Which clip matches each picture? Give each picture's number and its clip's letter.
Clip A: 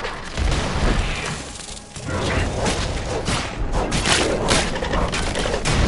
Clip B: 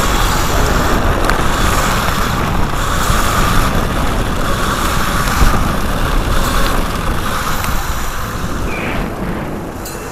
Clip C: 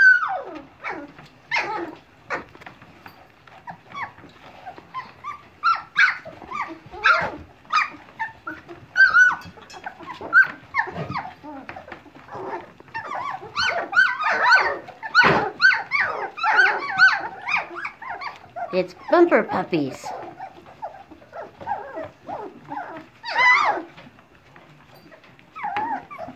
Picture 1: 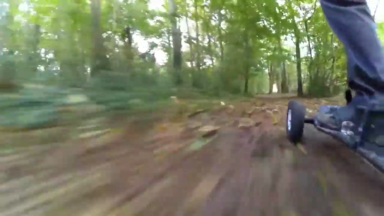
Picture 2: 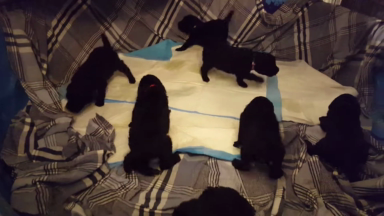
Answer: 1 B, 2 C